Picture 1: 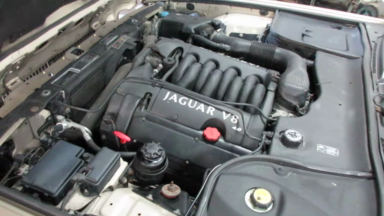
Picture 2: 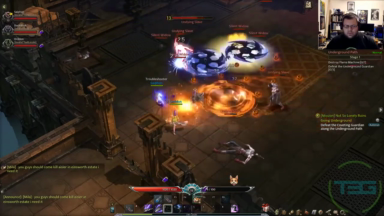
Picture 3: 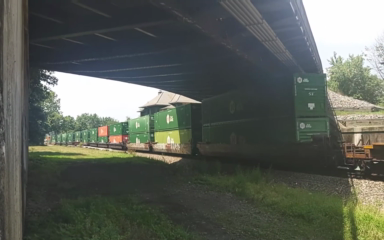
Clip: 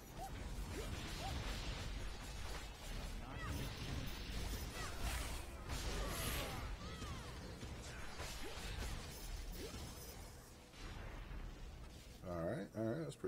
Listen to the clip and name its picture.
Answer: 2